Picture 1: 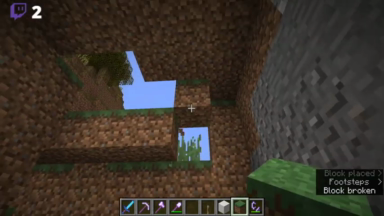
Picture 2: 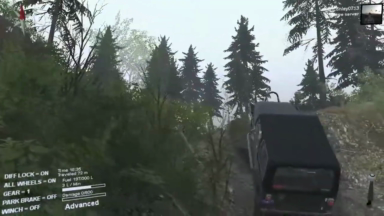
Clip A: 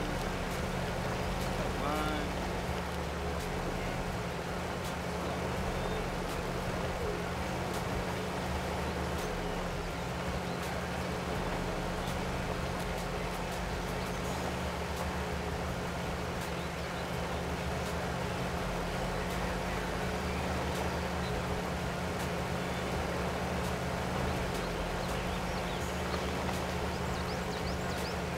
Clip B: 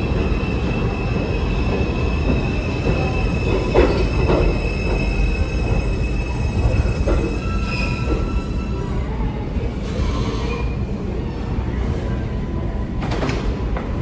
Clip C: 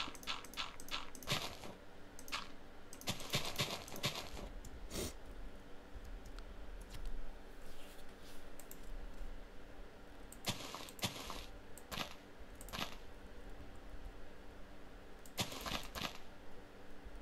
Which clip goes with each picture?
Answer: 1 C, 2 A